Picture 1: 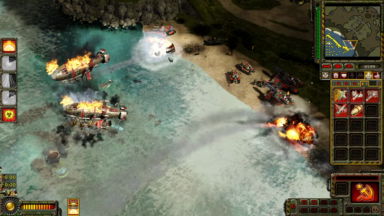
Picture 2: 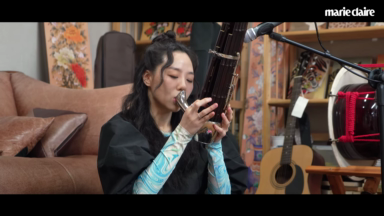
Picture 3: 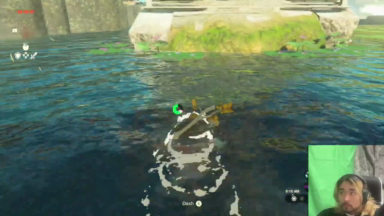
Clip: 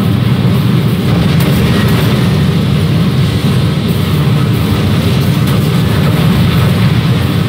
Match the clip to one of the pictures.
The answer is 1